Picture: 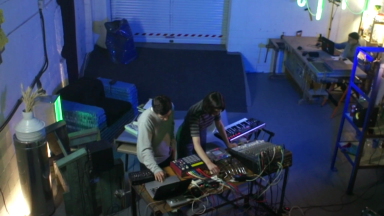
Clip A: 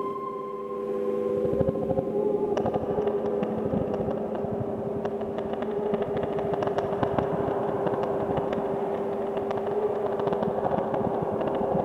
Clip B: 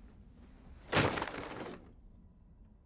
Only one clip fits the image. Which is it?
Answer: A